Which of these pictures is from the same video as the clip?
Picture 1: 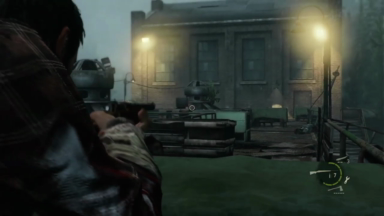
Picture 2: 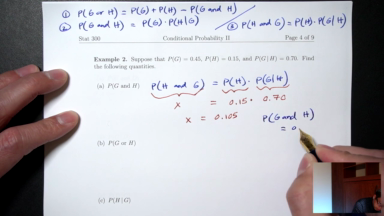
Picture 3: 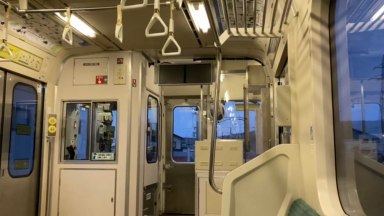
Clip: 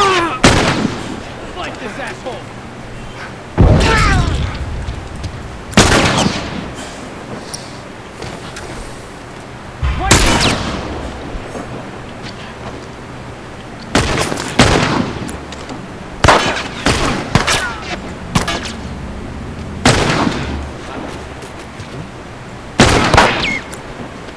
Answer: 1